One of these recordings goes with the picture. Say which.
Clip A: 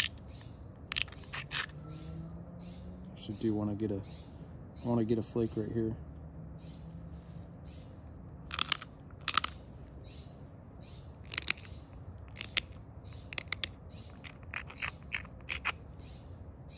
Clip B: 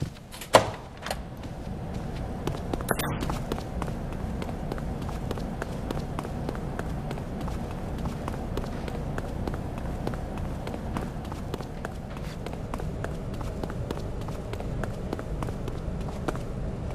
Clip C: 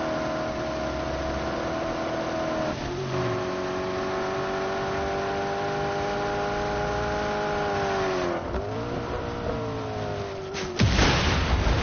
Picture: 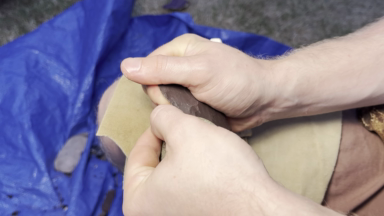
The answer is A